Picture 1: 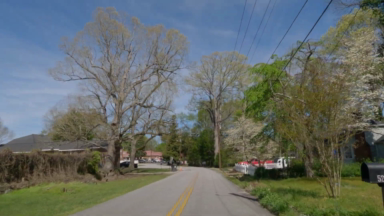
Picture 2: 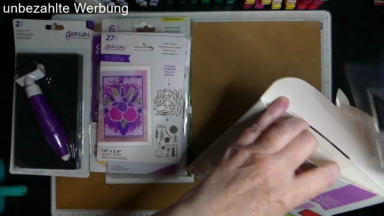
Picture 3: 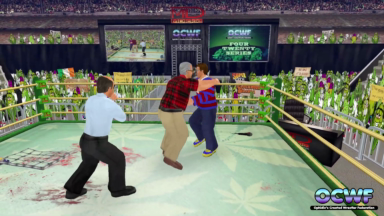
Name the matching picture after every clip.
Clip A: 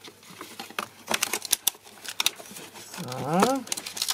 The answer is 2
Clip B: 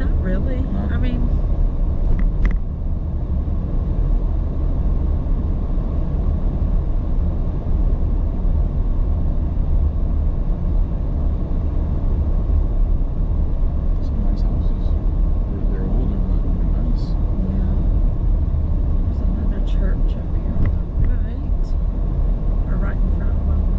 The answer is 1